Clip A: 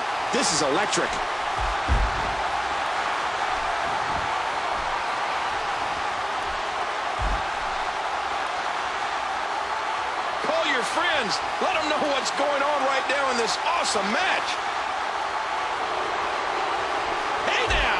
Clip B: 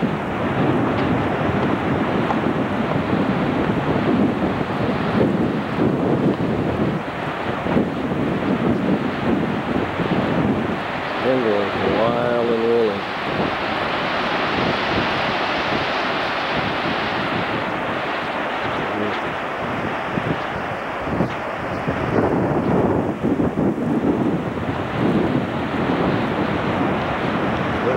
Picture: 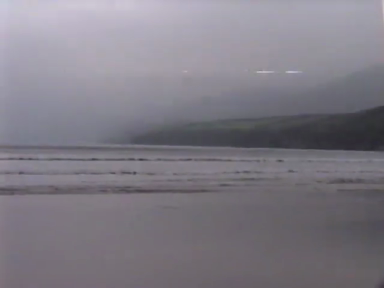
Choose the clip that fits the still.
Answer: B